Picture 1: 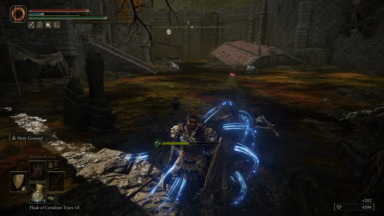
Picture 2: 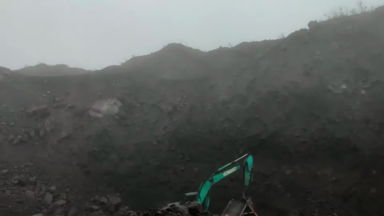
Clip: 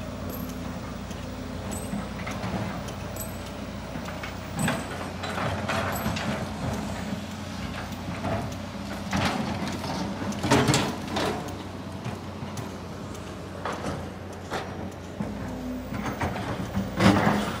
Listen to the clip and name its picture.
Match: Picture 2